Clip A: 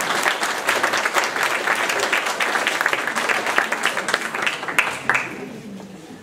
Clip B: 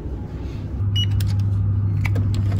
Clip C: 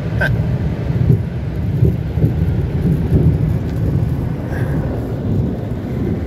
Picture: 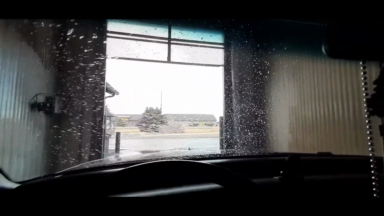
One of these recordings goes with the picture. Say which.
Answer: C